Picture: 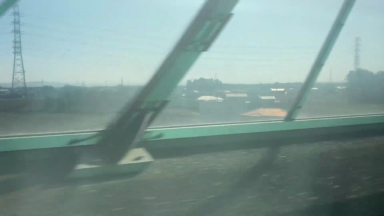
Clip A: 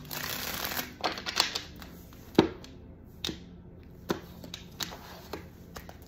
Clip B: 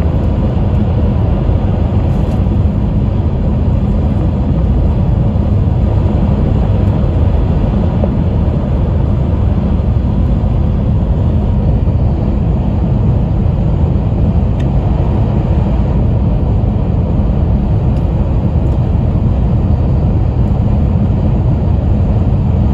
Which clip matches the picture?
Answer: B